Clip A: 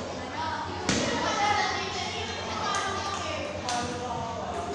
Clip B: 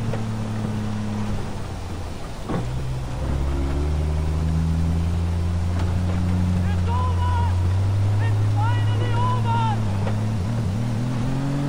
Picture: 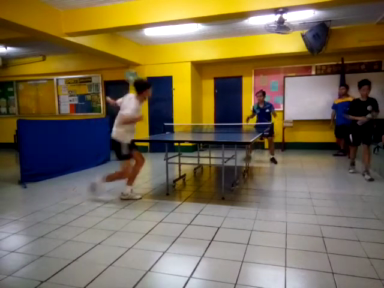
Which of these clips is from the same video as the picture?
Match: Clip A